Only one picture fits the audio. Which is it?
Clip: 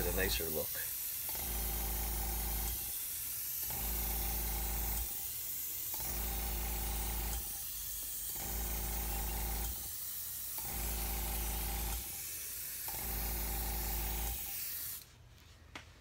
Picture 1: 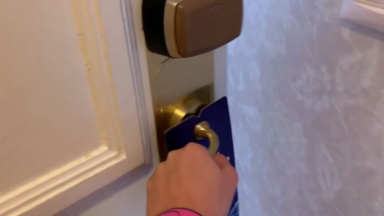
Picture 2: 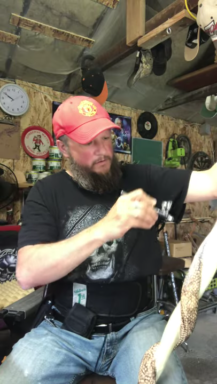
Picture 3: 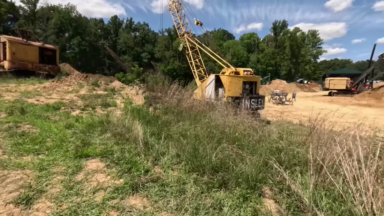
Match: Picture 2